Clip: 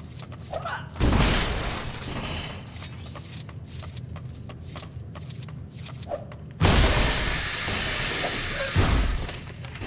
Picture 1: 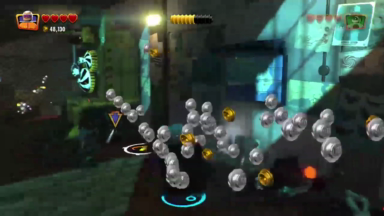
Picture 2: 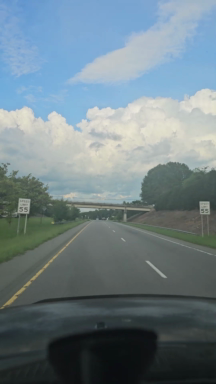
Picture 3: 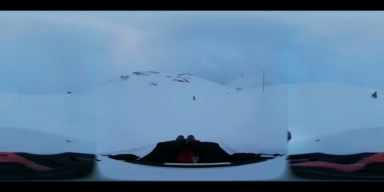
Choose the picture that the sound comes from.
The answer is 1